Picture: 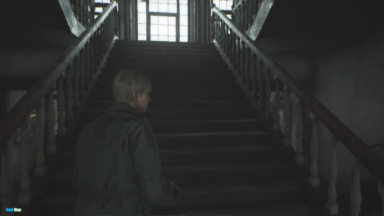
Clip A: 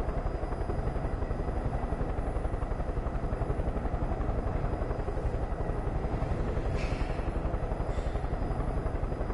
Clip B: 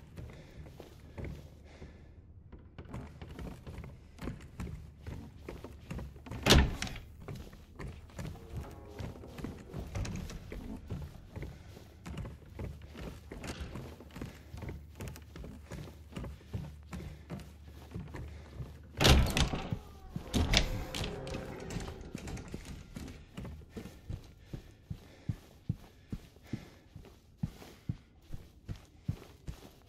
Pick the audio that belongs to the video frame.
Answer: B